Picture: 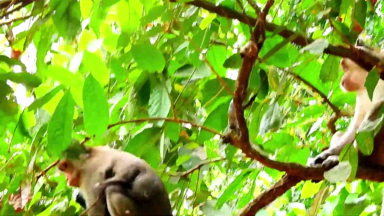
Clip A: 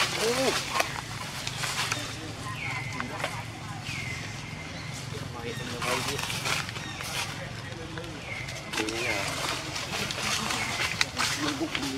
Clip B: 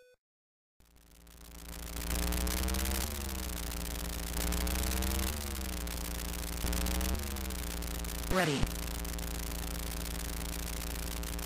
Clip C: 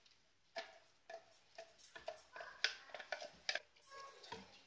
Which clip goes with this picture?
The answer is A